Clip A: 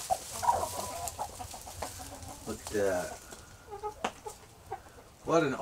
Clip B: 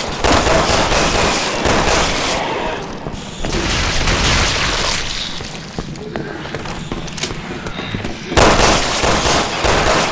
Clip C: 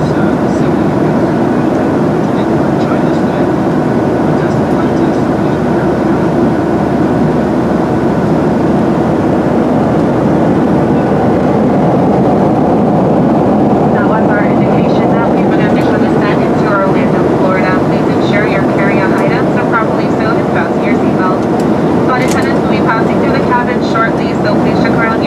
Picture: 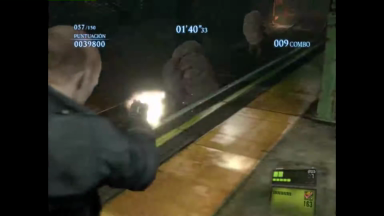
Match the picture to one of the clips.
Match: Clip B